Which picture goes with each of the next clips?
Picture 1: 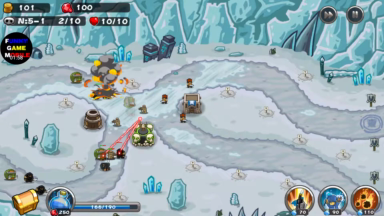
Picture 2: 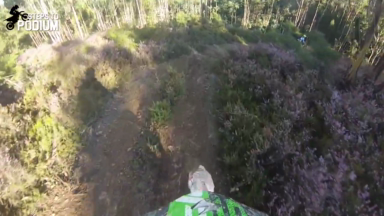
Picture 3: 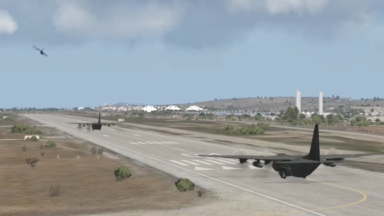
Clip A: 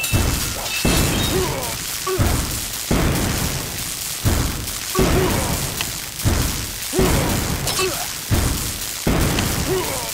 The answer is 1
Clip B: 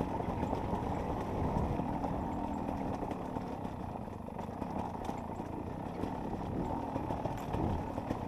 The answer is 2